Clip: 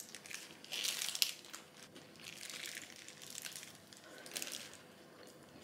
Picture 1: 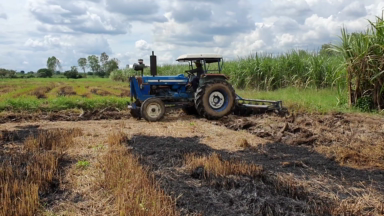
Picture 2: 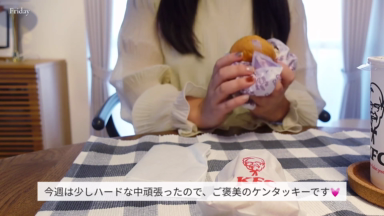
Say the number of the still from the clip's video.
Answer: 2